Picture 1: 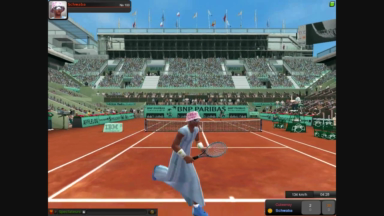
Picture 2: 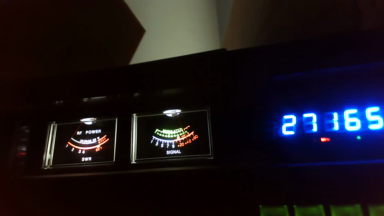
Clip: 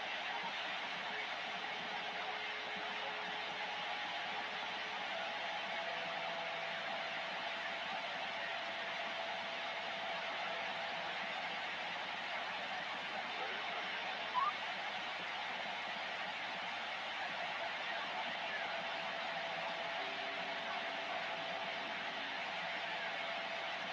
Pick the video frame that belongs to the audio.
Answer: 2